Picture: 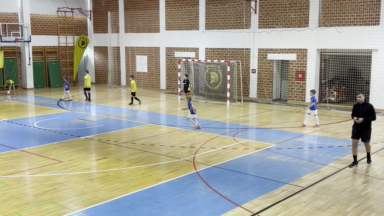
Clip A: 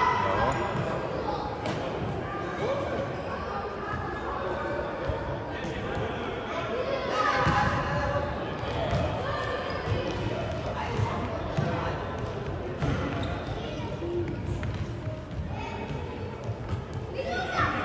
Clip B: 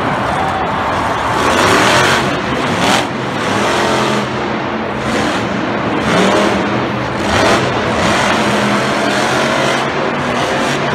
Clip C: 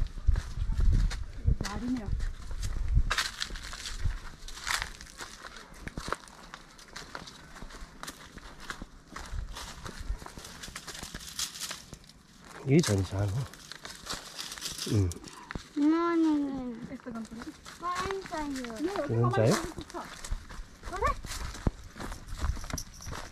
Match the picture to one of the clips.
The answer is A